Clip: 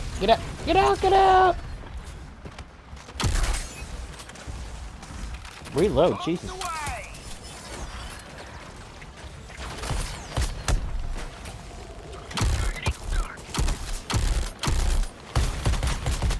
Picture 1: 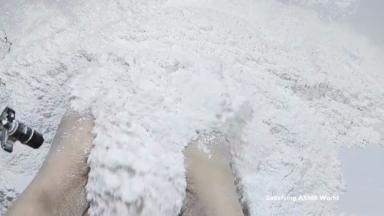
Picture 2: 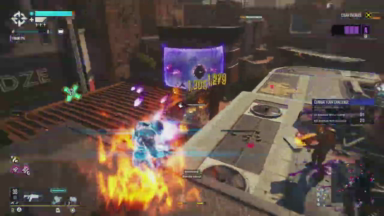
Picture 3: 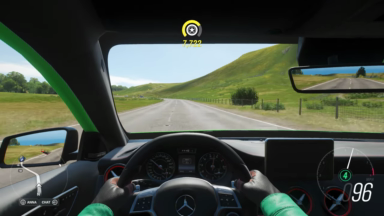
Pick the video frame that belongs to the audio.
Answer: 2